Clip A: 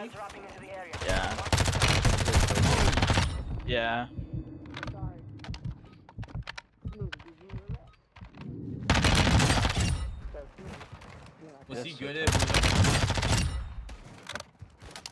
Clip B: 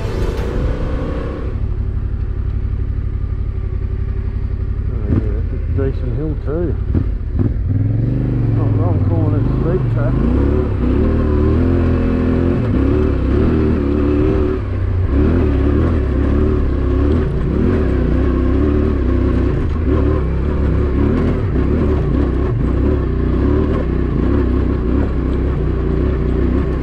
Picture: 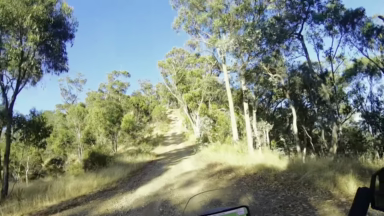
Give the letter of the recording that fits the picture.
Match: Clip B